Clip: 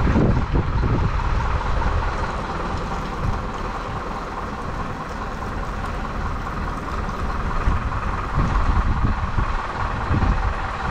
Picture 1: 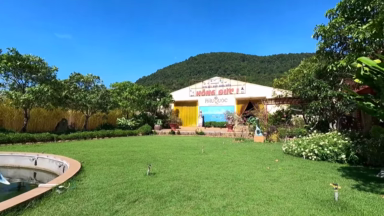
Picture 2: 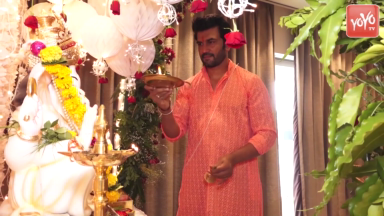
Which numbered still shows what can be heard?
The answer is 1